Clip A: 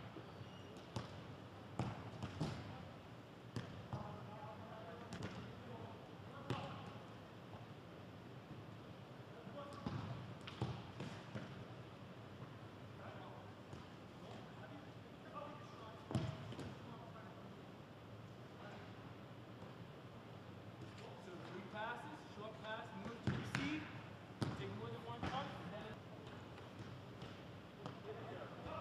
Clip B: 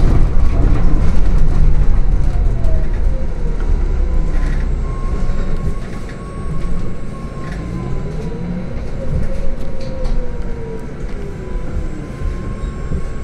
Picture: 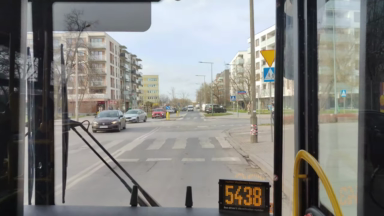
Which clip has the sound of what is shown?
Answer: B